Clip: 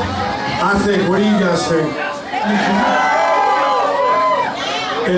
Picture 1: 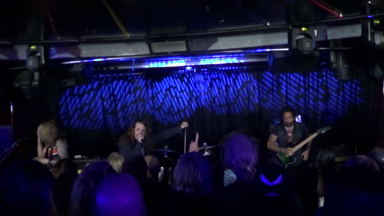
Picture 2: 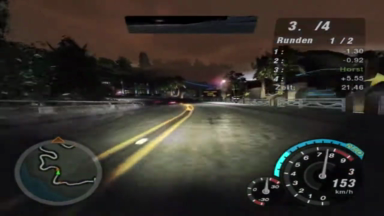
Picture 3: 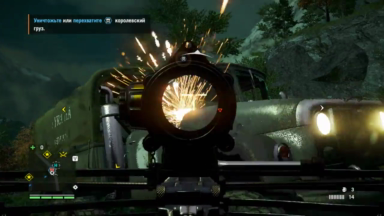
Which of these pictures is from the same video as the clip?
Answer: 1